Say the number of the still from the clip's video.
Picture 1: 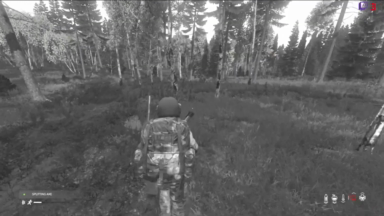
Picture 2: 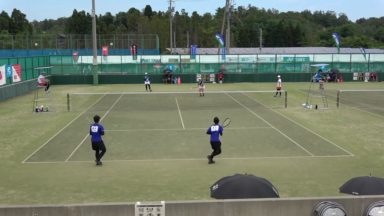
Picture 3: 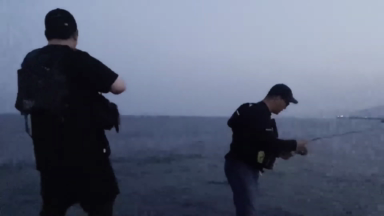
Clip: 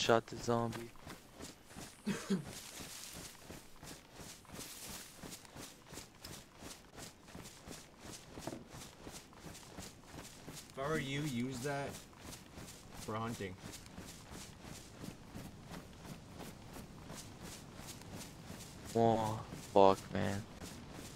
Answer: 1